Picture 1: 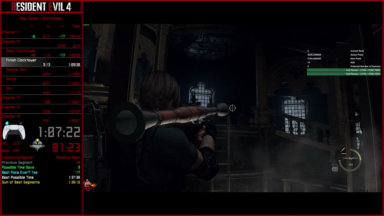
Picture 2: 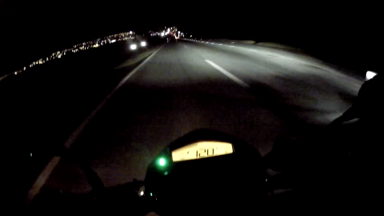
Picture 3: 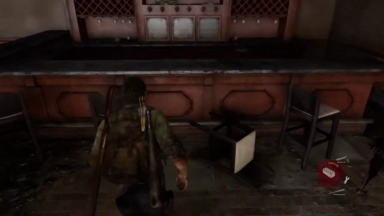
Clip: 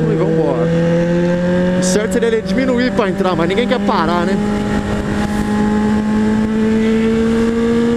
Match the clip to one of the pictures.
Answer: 2